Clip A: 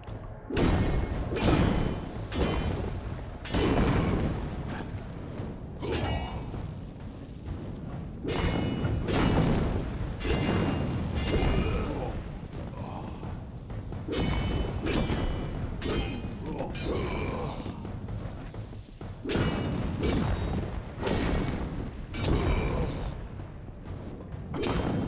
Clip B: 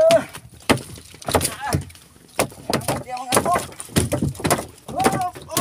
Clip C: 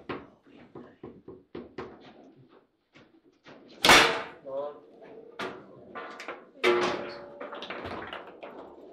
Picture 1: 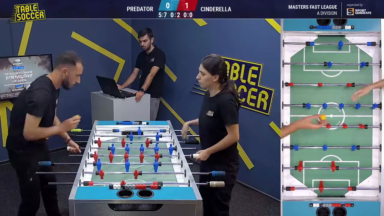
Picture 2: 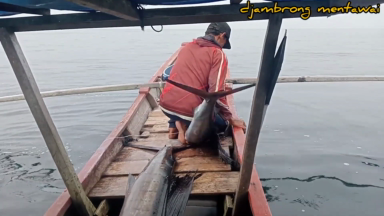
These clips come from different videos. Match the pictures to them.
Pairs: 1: C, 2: B